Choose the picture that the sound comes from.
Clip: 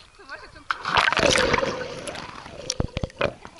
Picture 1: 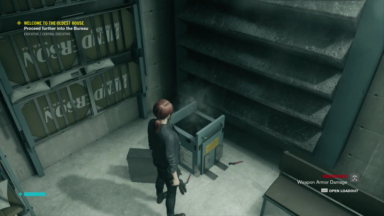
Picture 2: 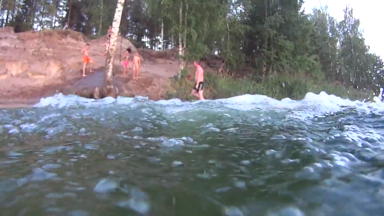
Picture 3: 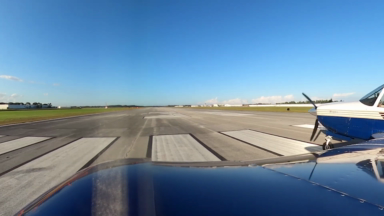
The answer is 2